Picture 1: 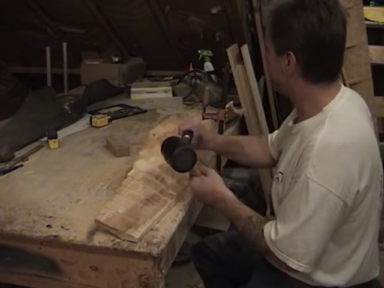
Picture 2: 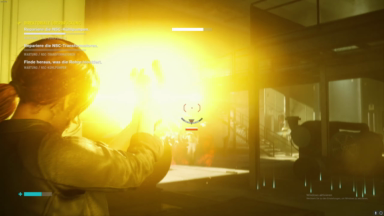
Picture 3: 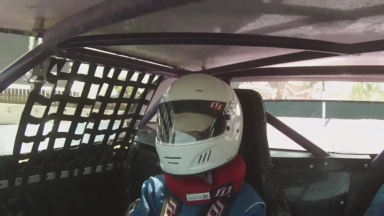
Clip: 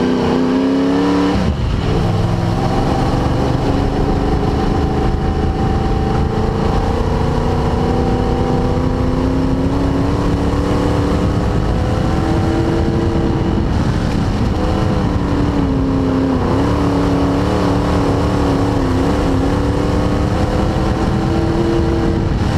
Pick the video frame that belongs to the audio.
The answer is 3